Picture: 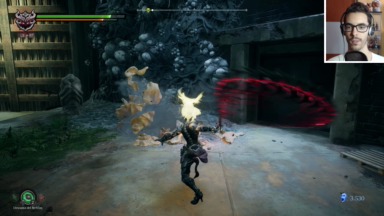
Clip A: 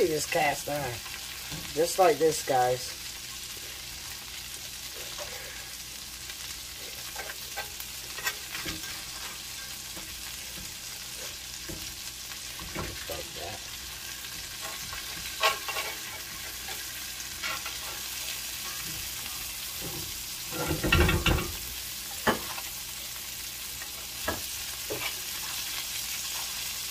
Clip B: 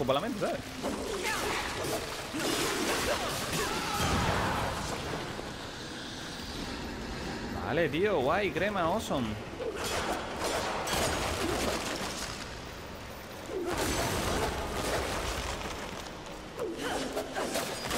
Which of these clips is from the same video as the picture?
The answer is B